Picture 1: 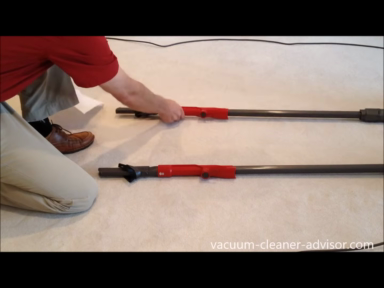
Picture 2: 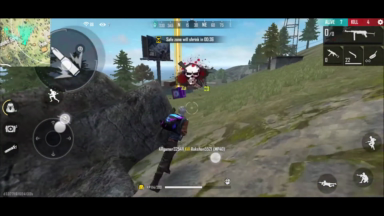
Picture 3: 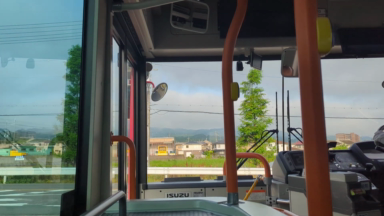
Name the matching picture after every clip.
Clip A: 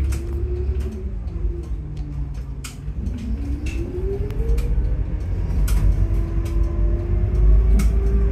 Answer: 3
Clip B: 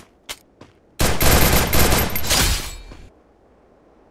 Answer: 2